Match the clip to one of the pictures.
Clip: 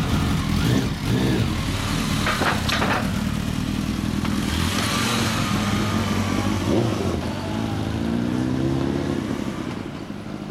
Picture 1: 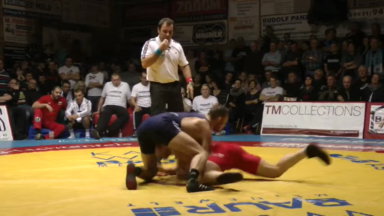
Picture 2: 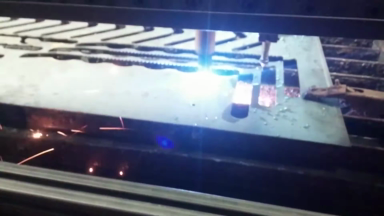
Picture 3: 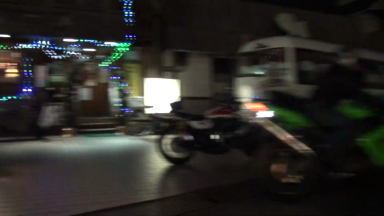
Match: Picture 3